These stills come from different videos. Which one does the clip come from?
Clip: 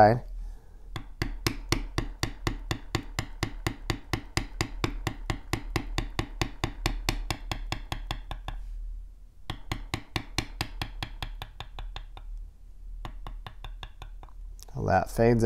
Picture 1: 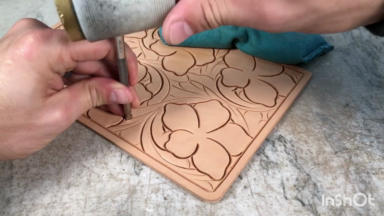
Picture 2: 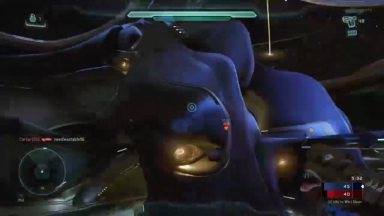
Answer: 1